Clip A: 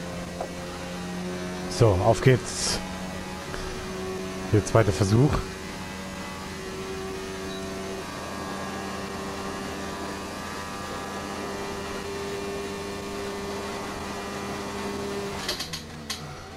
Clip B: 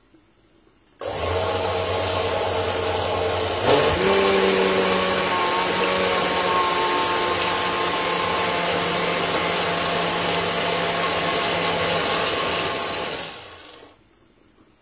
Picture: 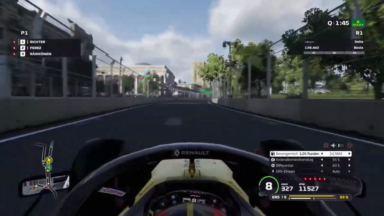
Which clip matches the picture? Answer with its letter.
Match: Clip A